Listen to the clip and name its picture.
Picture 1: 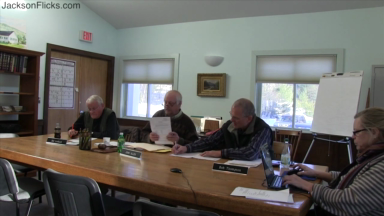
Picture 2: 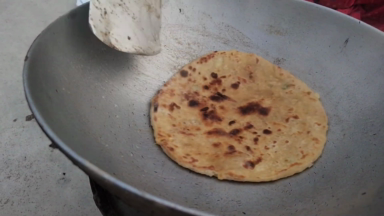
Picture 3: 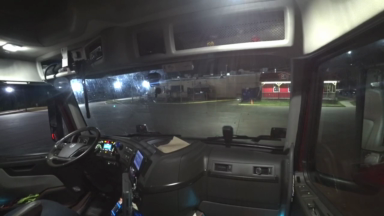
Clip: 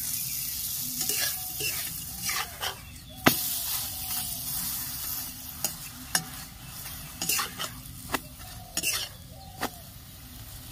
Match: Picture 2